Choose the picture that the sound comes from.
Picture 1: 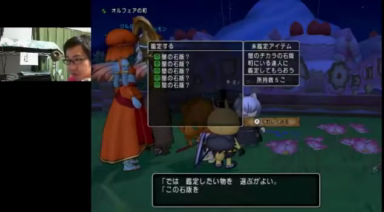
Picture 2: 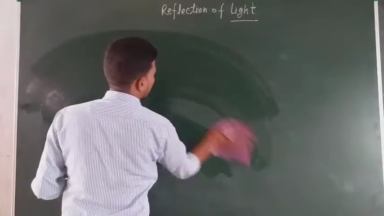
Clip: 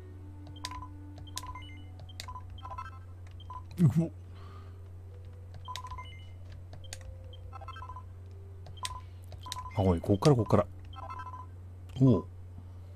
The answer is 1